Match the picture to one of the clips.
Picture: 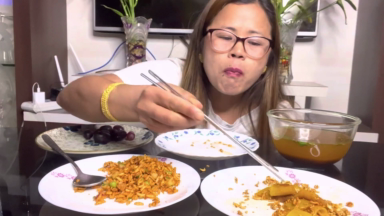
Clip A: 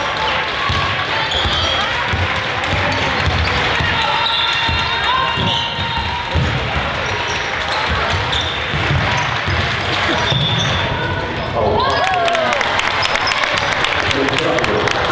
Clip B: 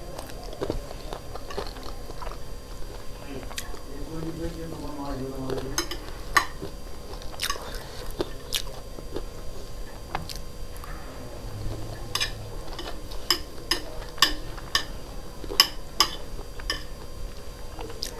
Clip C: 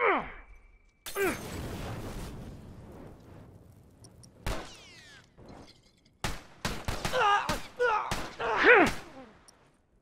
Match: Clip B